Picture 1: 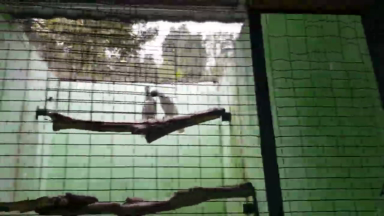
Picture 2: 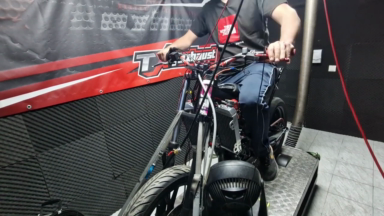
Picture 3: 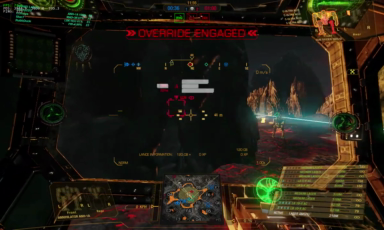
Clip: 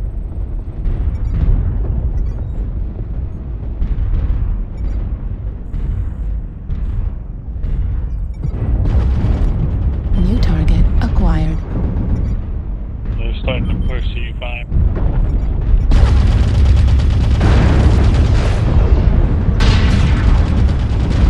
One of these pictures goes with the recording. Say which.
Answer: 3